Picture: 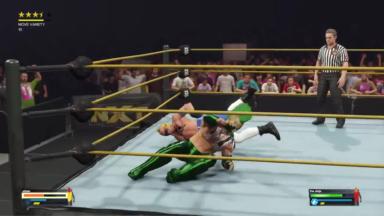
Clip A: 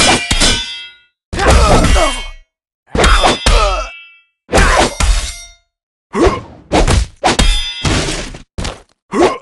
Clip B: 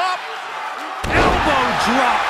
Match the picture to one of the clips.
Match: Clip B